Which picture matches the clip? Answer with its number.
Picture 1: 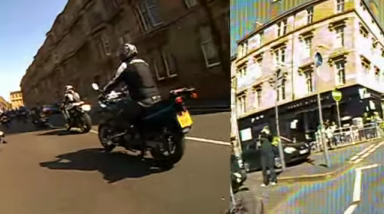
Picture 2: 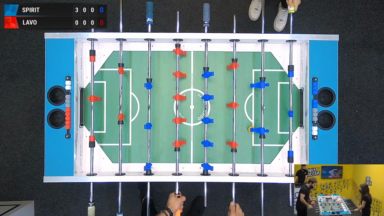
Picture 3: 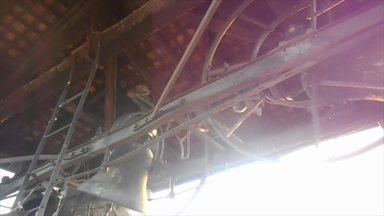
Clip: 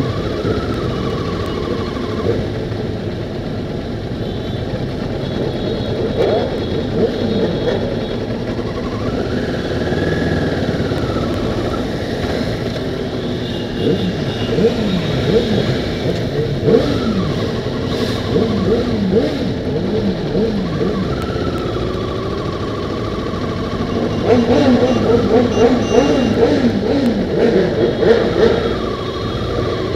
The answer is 1